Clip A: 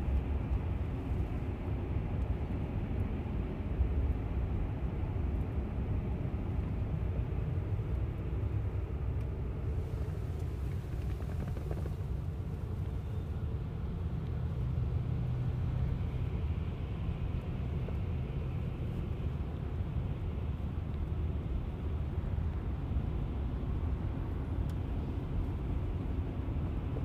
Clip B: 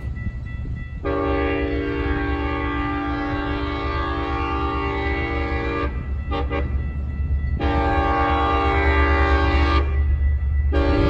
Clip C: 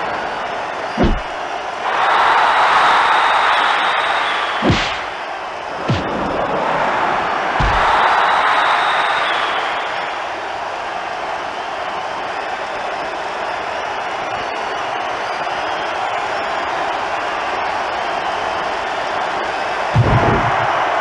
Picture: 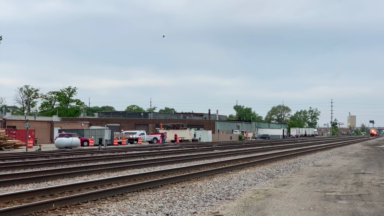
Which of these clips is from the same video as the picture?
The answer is B